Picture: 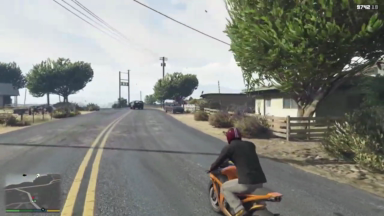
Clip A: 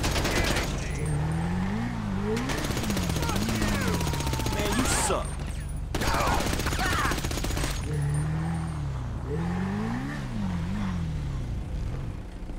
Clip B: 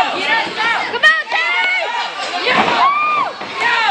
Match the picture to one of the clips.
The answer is A